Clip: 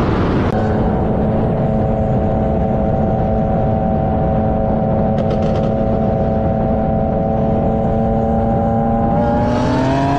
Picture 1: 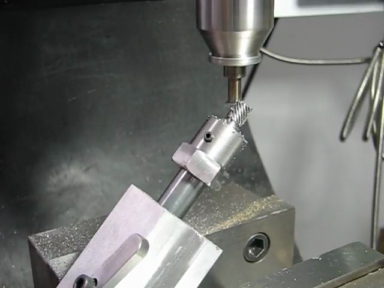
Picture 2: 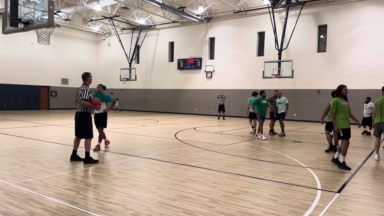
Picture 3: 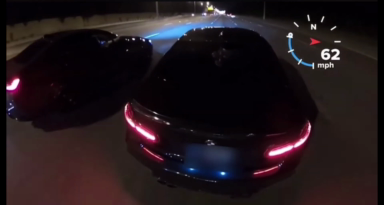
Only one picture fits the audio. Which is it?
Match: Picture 3